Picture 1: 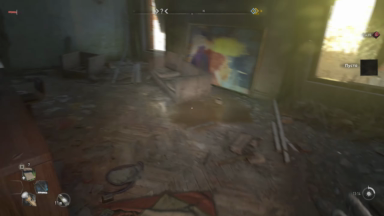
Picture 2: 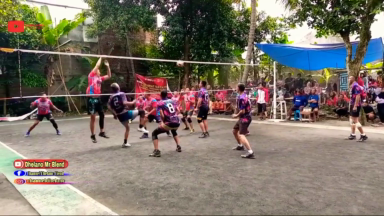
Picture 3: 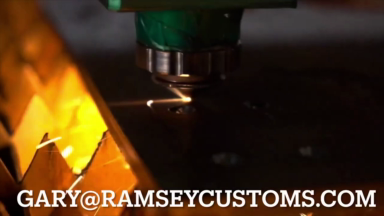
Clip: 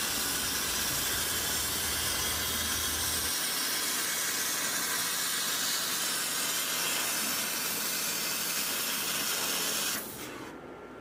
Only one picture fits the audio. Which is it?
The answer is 3